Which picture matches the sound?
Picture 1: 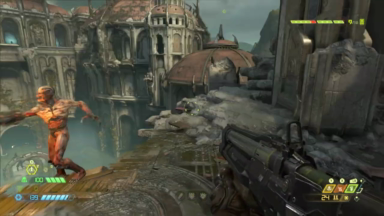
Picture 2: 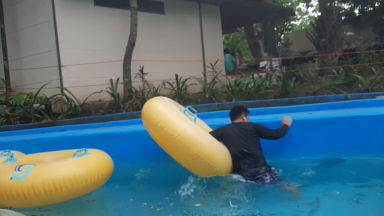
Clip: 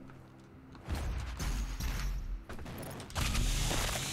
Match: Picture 1